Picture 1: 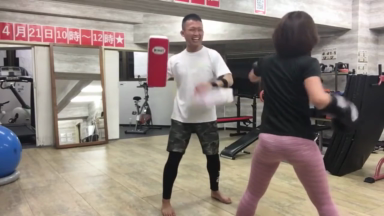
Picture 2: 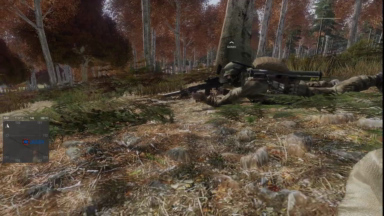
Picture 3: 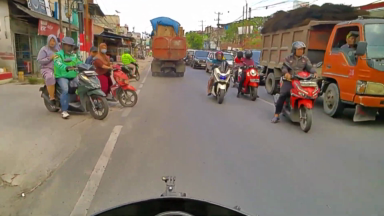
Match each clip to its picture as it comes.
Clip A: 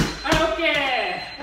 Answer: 1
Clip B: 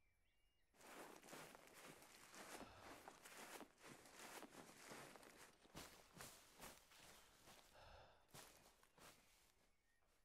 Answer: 2